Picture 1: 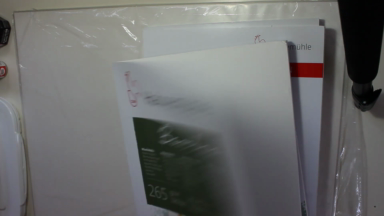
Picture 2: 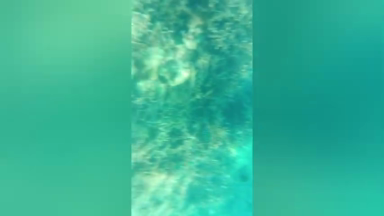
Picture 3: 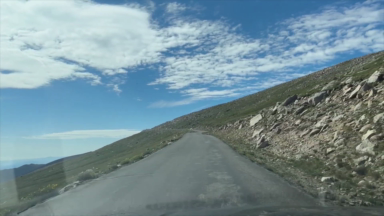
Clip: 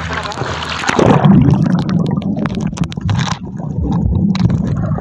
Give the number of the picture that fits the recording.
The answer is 2